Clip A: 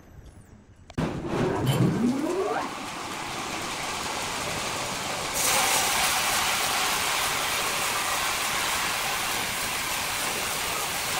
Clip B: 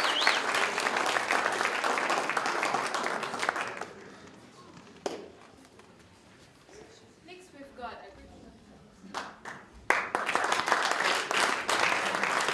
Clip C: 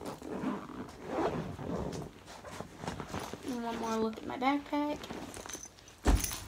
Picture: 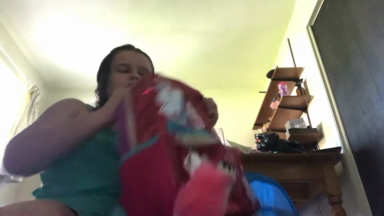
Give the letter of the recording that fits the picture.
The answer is C